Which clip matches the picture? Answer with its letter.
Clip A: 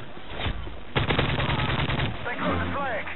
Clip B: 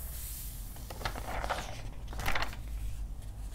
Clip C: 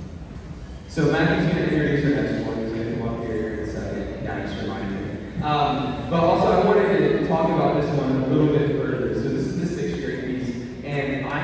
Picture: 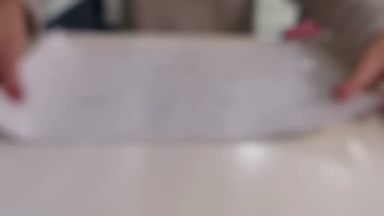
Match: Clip B